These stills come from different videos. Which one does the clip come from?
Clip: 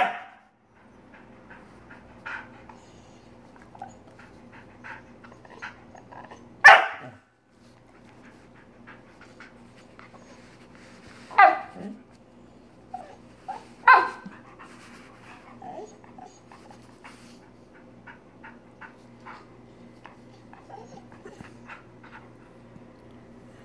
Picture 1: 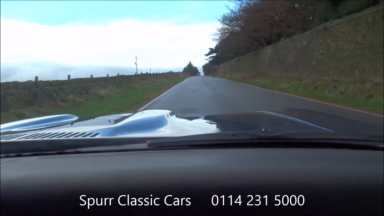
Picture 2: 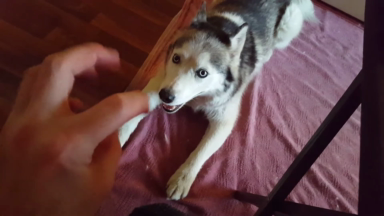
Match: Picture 2